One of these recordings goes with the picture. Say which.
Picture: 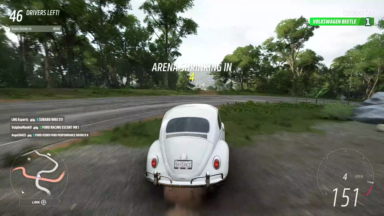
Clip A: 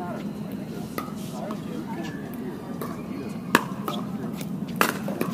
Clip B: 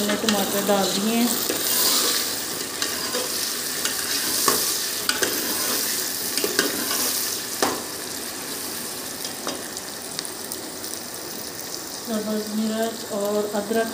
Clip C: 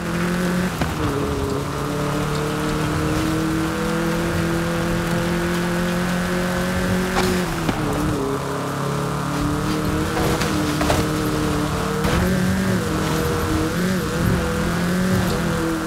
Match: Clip C